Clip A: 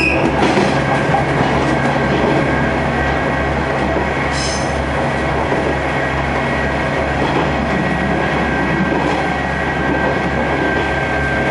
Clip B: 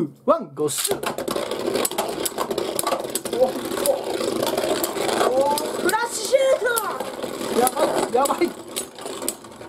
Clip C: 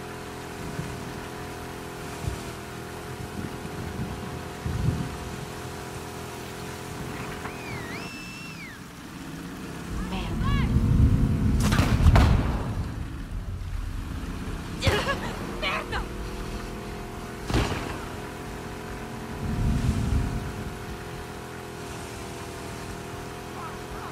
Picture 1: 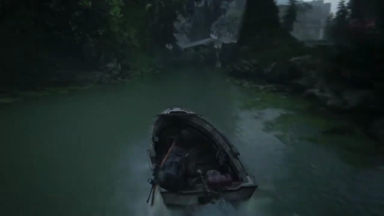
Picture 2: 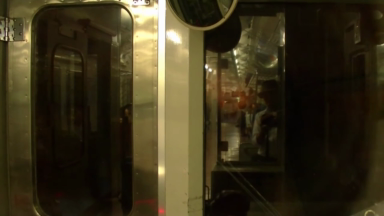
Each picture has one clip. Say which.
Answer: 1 C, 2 A